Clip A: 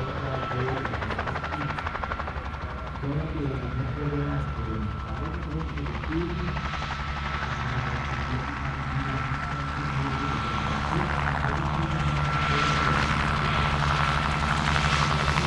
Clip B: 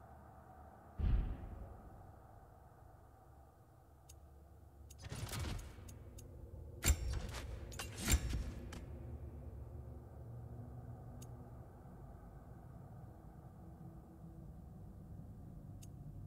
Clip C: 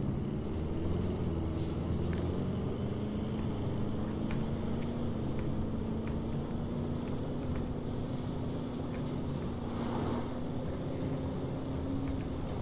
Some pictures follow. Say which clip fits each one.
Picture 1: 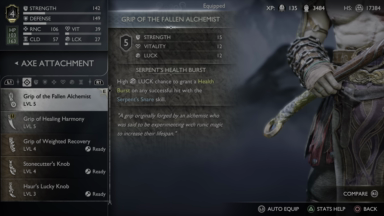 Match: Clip B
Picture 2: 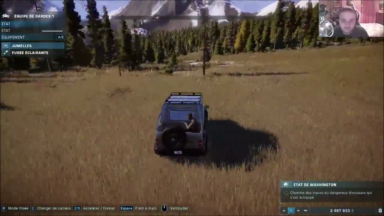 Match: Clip C